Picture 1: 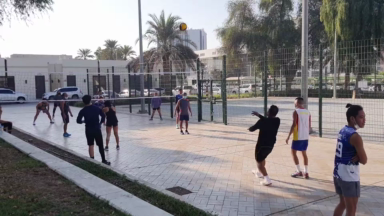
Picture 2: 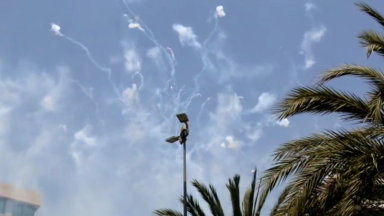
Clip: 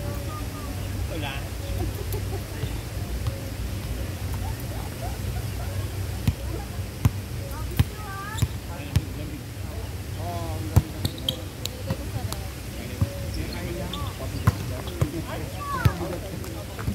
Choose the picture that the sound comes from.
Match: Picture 1